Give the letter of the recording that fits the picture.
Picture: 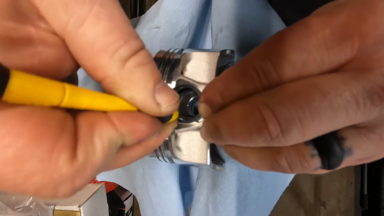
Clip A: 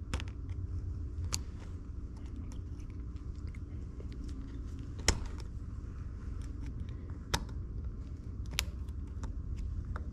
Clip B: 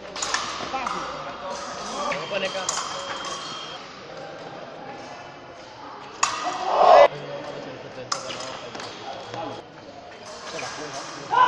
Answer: A